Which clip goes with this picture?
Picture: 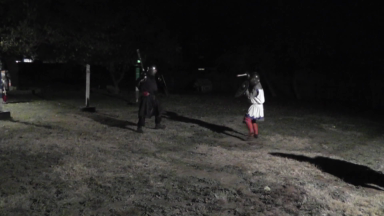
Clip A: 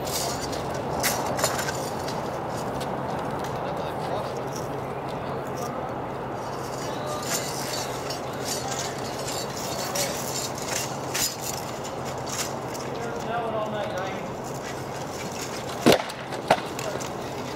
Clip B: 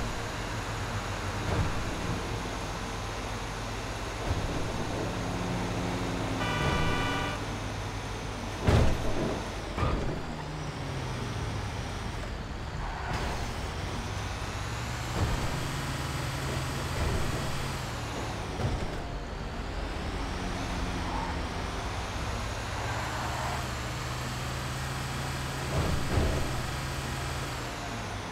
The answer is A